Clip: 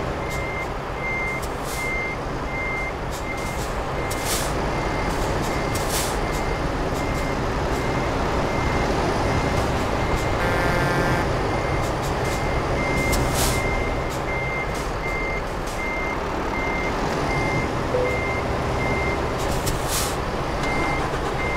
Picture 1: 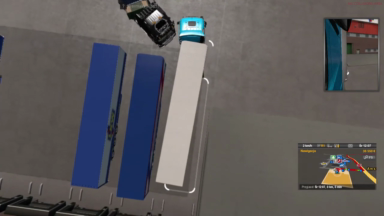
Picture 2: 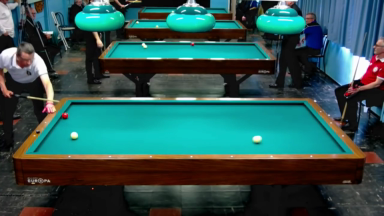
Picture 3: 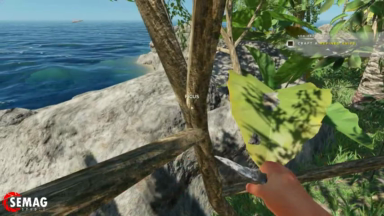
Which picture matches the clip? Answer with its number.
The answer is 1